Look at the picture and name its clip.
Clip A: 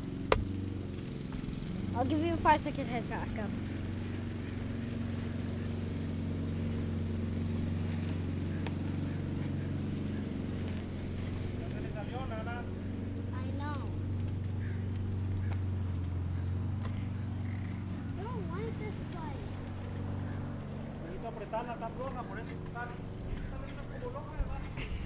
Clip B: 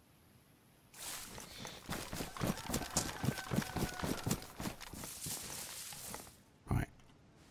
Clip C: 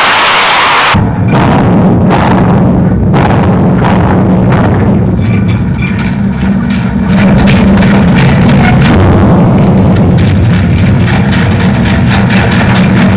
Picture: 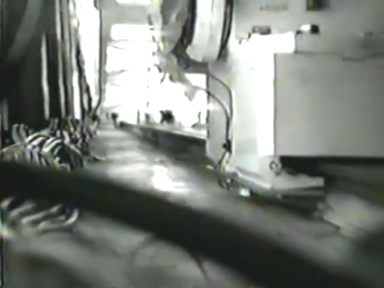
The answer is C